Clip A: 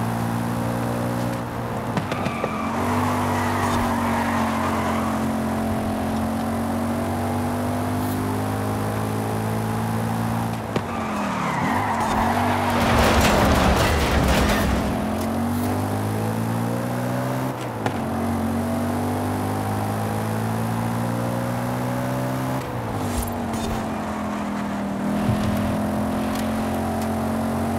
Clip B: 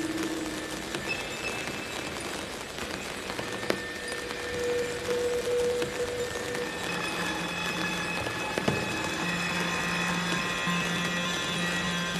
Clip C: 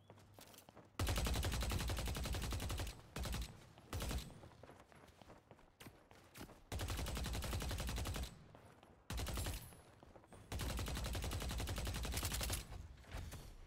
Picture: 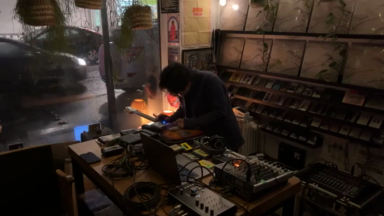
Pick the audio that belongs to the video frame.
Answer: B